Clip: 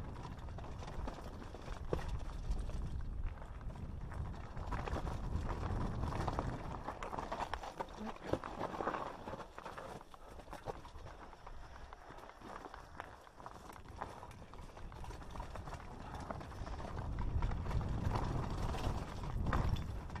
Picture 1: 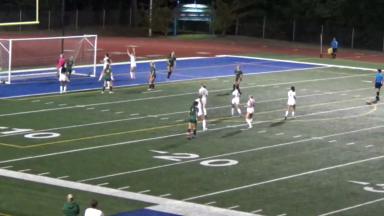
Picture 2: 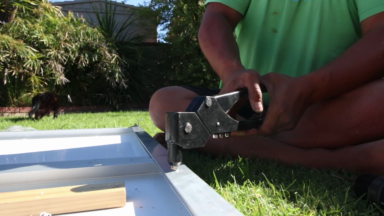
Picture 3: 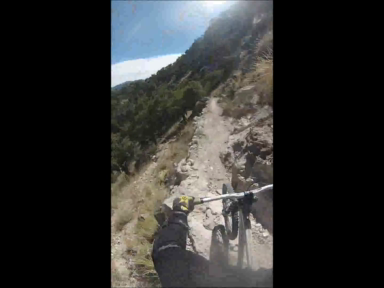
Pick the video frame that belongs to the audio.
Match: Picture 3